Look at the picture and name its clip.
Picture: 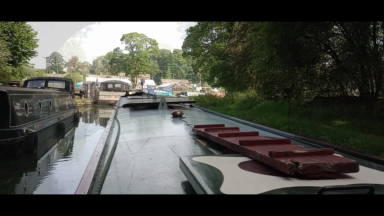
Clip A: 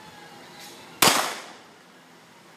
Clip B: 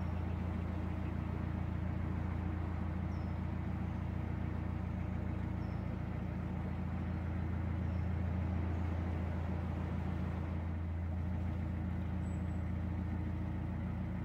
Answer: B